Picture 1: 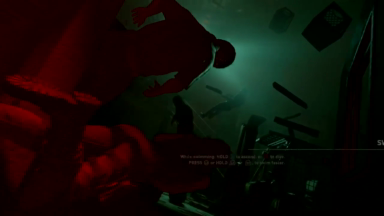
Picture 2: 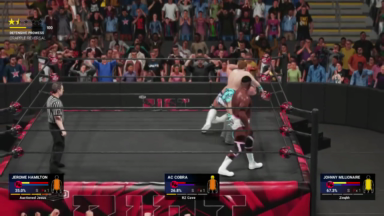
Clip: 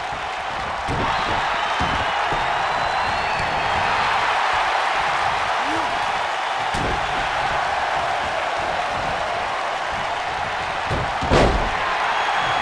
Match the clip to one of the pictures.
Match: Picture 2